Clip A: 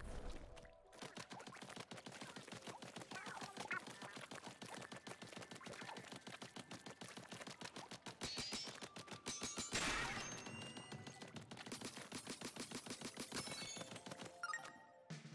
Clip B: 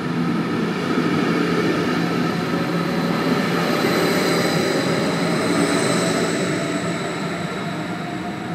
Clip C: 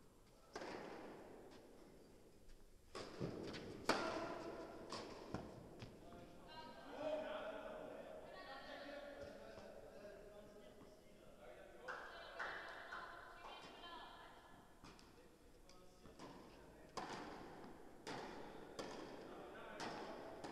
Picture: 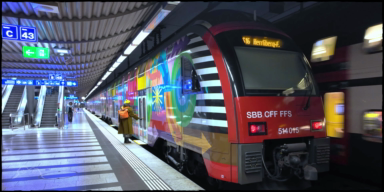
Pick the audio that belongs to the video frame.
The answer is B